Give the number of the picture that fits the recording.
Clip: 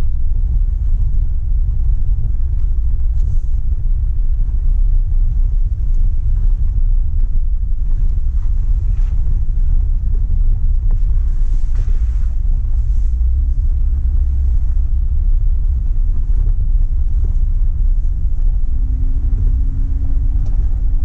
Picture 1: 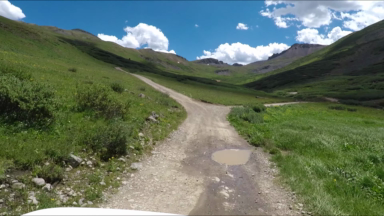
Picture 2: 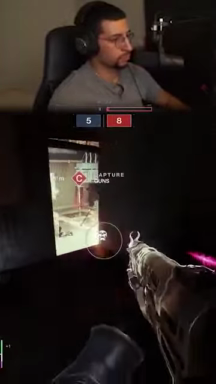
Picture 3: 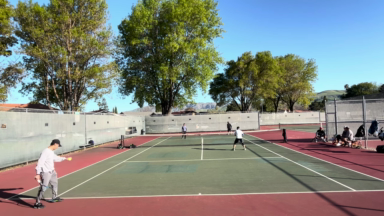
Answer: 1